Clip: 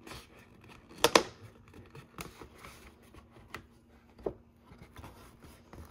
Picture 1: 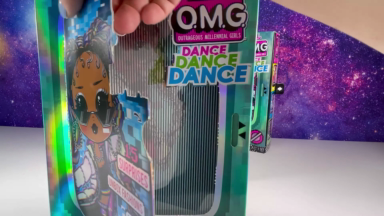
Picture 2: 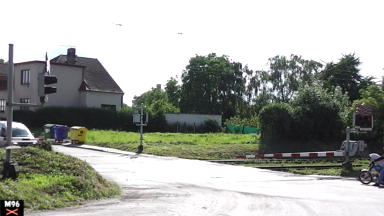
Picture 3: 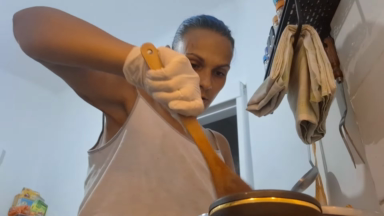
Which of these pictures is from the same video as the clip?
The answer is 1